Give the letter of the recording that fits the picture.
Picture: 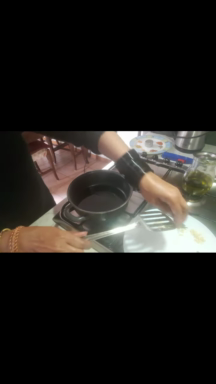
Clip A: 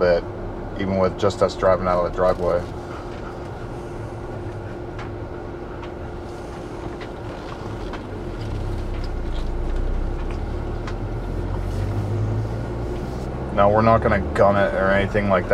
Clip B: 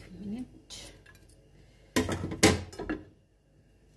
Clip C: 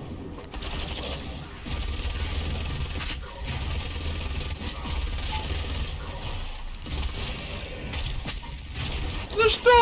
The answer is B